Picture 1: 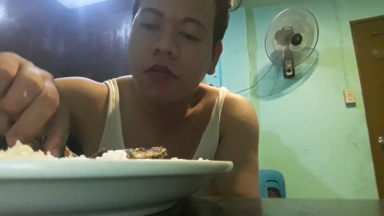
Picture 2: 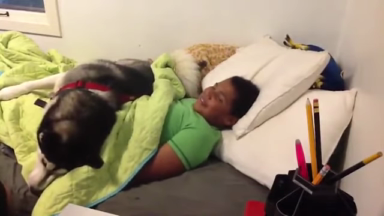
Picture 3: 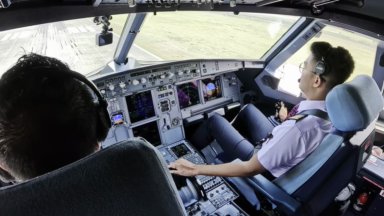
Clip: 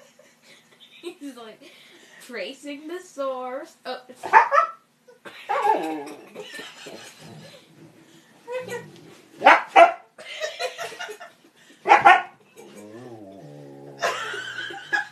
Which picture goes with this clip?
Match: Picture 2